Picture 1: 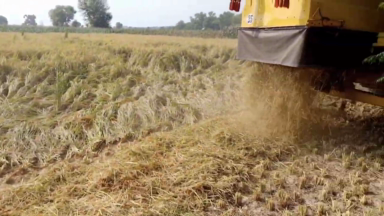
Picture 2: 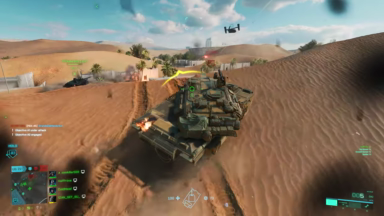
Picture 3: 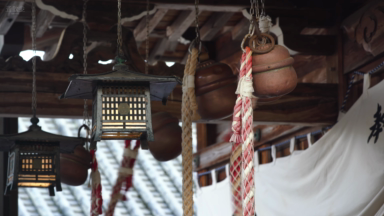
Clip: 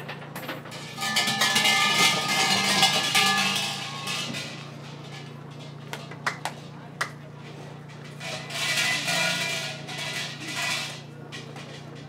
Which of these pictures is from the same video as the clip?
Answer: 3